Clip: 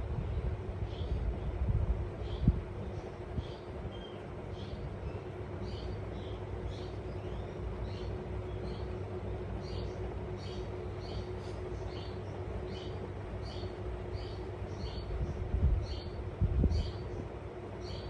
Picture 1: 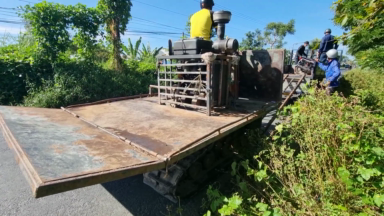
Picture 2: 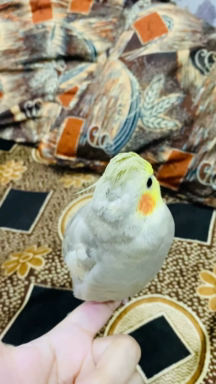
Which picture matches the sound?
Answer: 2